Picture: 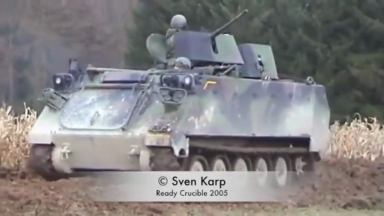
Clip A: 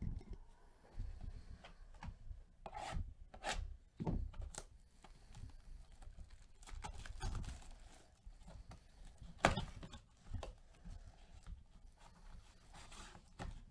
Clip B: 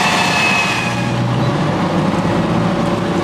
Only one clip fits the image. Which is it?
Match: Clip B